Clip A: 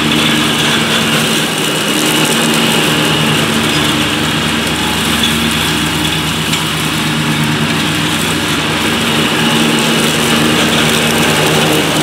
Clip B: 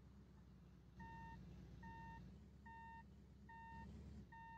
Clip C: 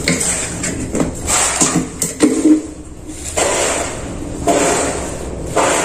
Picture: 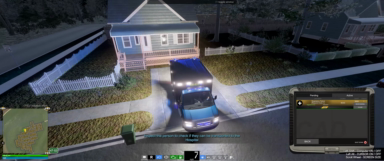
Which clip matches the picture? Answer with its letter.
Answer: B